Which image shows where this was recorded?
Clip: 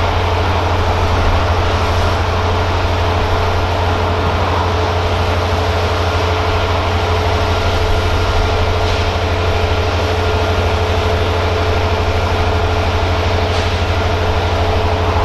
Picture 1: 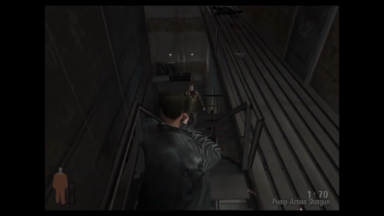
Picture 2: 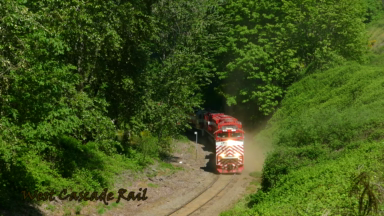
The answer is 2